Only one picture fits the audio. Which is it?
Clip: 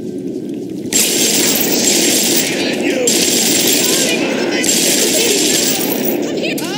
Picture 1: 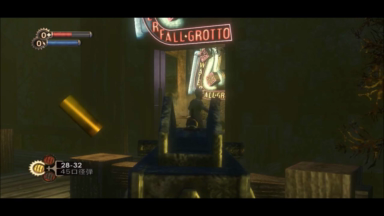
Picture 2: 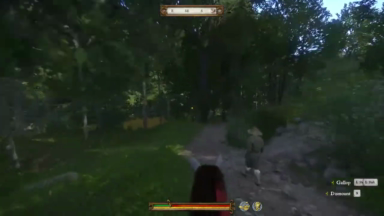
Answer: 1